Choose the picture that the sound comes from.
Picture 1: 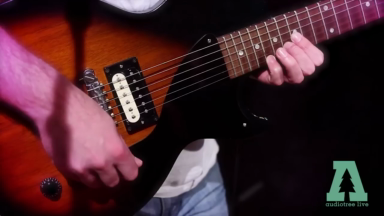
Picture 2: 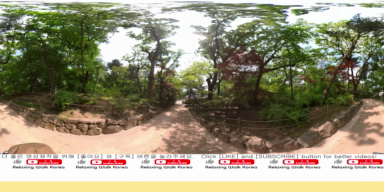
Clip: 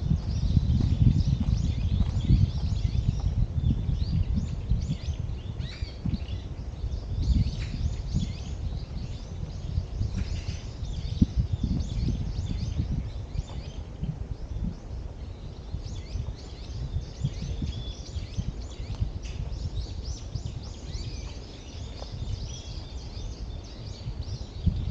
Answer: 2